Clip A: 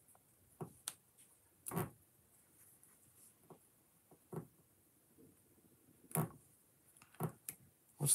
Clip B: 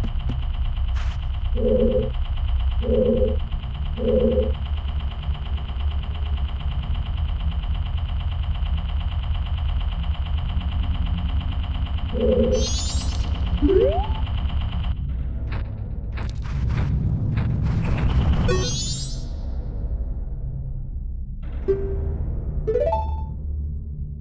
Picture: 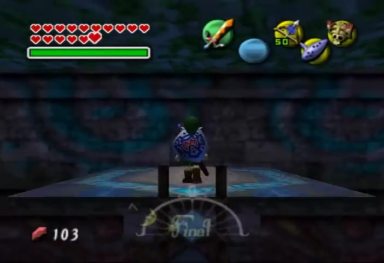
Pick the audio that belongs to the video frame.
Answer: B